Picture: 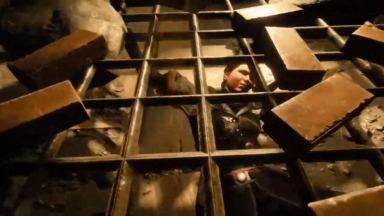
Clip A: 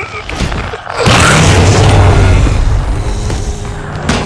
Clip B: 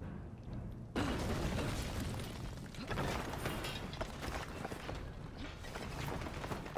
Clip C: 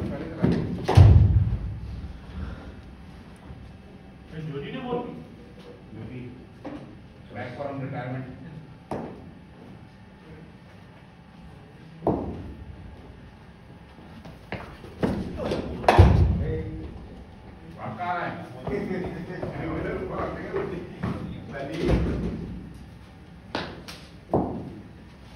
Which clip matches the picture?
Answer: B